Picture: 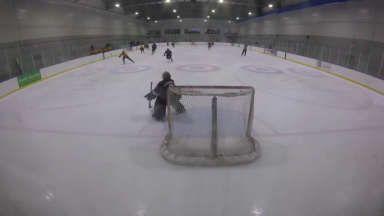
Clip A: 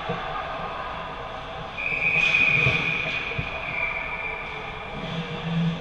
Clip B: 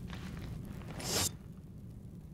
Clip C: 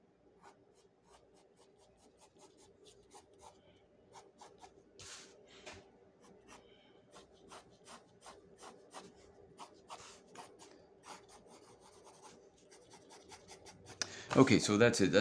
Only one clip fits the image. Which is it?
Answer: A